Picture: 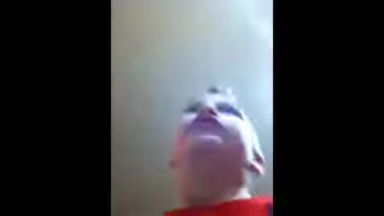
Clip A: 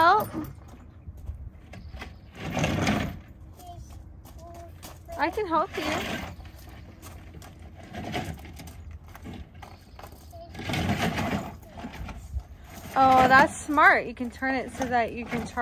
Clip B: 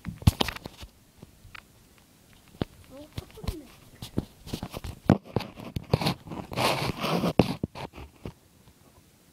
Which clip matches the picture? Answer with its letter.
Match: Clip B